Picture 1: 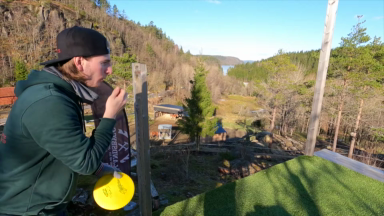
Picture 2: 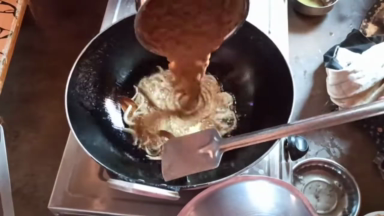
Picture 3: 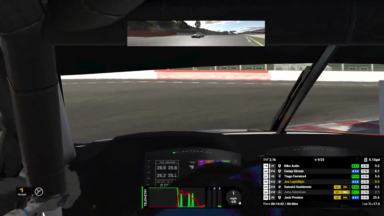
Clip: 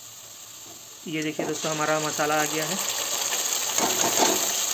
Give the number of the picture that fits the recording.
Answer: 2